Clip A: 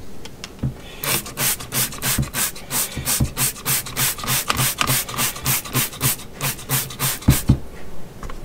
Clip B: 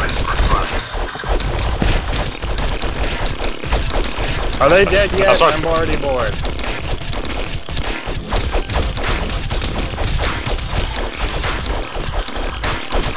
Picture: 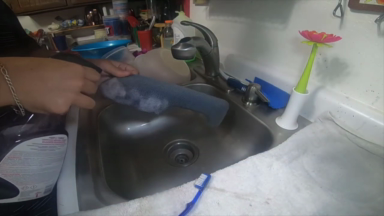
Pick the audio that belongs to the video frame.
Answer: A